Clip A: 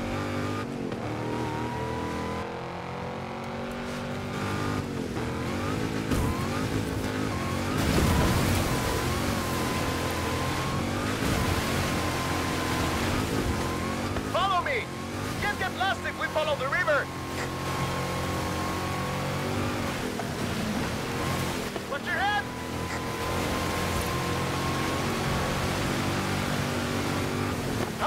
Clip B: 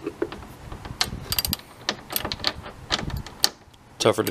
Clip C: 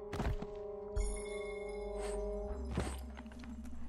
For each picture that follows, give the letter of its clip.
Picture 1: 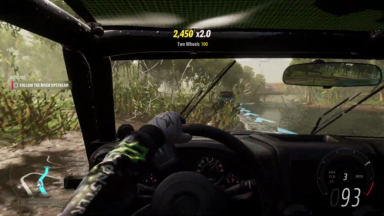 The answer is A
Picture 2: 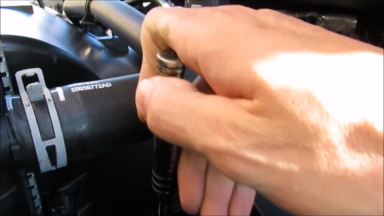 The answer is B